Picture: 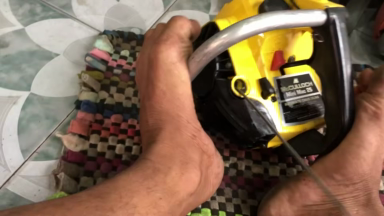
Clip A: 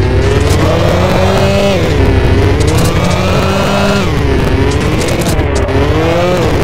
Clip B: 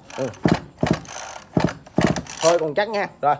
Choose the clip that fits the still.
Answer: B